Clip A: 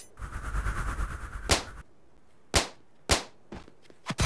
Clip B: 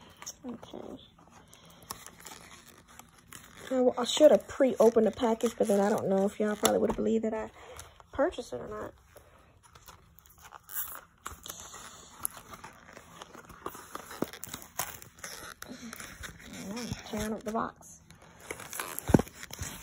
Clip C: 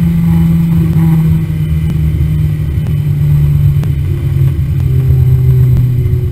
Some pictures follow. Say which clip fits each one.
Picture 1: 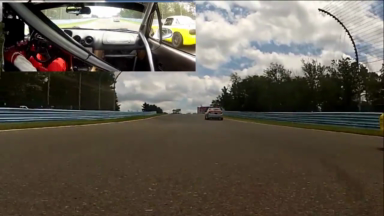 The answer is C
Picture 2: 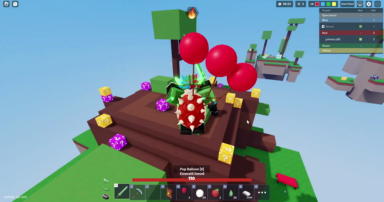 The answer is A